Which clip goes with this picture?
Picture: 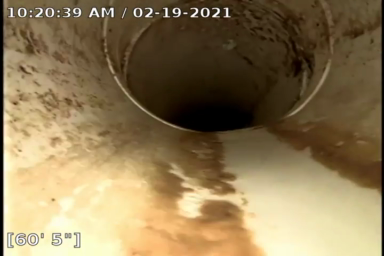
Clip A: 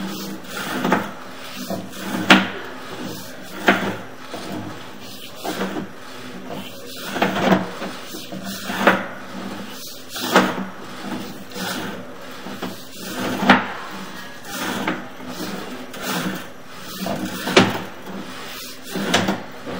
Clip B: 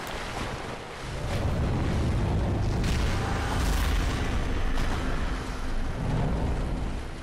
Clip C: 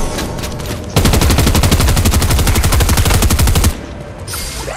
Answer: A